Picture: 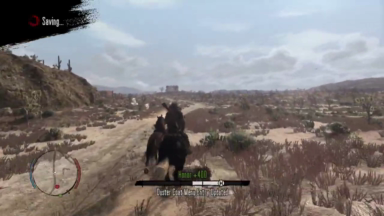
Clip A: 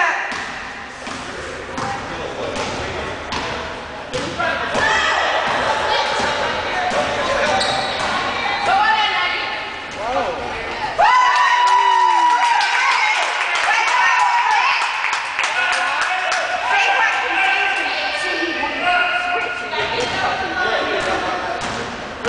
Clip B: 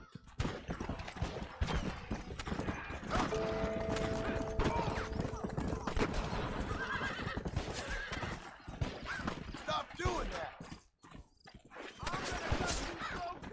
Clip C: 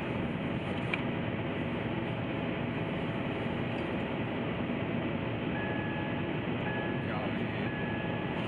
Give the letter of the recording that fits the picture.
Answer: B